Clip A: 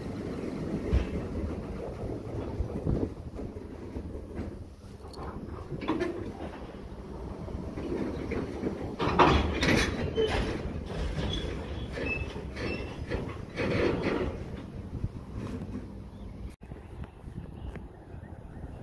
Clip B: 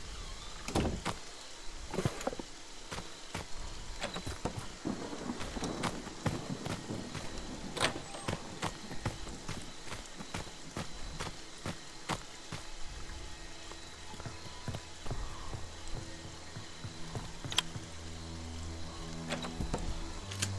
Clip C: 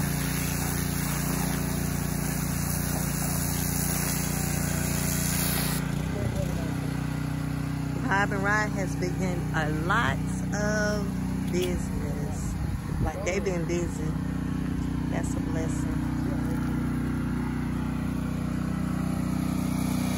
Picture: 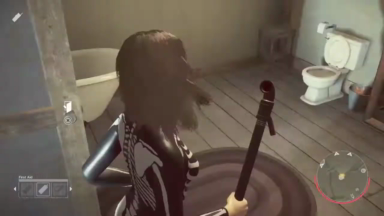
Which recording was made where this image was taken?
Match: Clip B